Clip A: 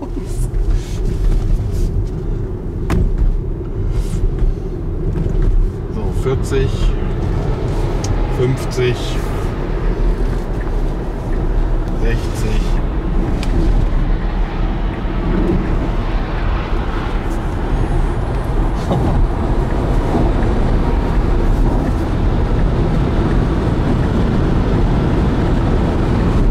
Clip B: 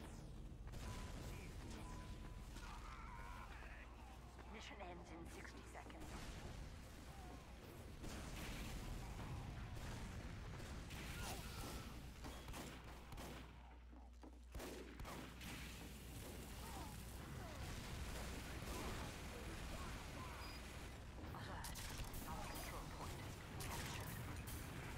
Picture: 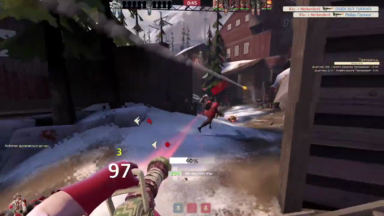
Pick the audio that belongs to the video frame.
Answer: B